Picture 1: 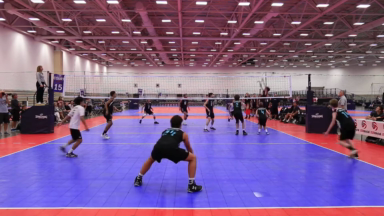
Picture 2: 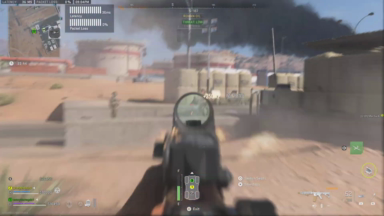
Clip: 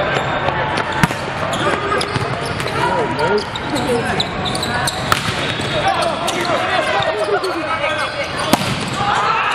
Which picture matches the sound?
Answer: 1